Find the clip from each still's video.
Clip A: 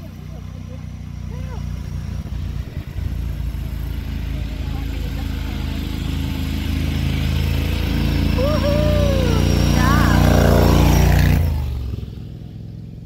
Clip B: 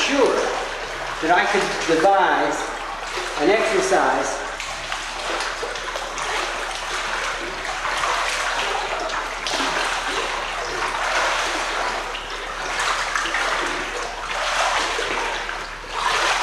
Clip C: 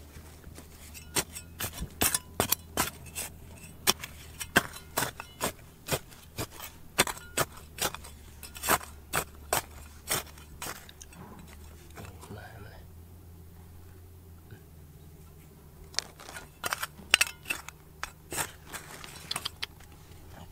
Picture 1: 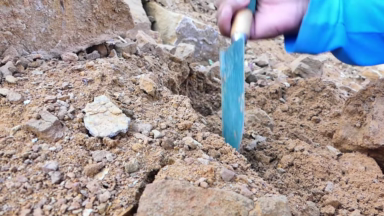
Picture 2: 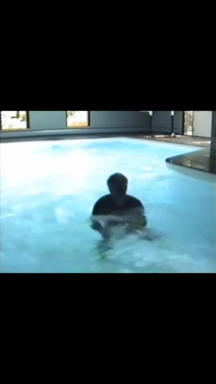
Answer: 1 C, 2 B